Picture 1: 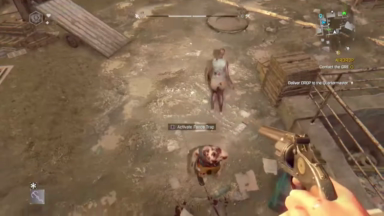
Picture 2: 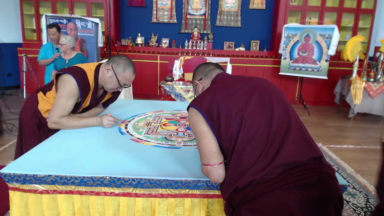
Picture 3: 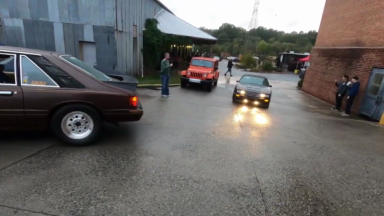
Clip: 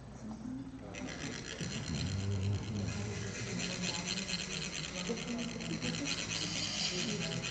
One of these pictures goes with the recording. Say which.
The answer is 2